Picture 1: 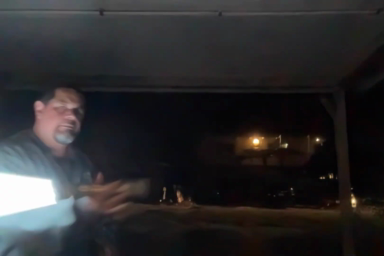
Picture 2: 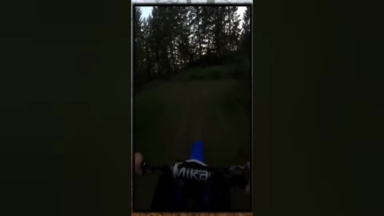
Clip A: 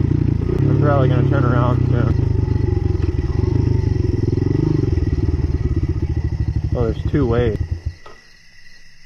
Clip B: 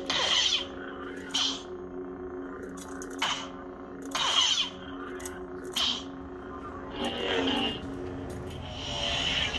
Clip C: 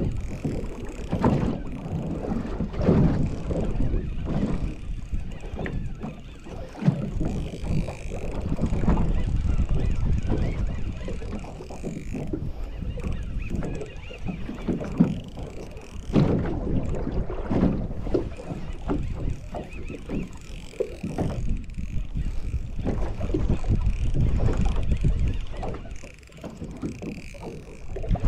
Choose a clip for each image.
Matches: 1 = B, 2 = A